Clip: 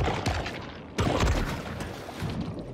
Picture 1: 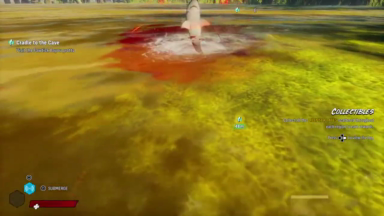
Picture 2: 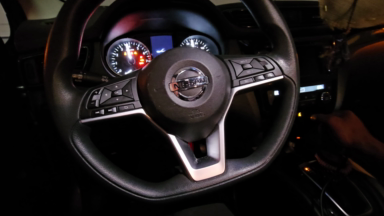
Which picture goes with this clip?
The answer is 1